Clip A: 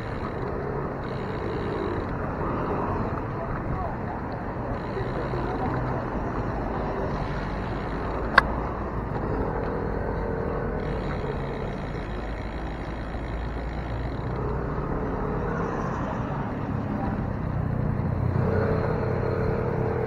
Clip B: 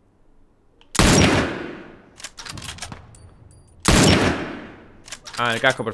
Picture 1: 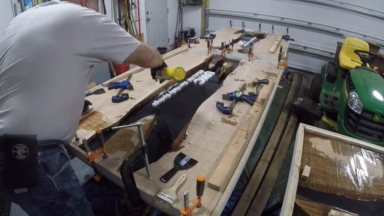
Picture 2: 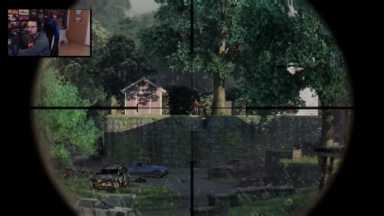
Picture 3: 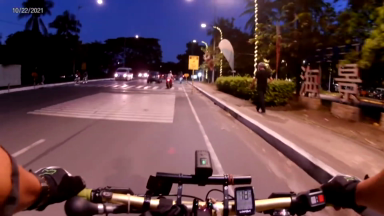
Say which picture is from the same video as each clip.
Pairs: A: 3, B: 2